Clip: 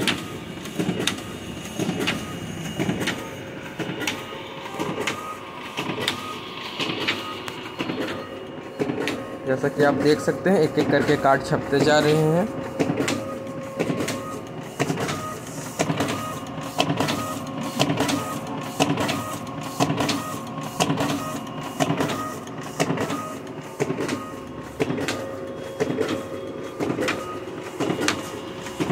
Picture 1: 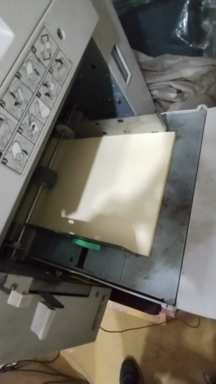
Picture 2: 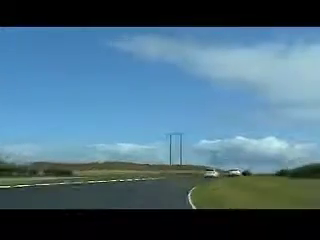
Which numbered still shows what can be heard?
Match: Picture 1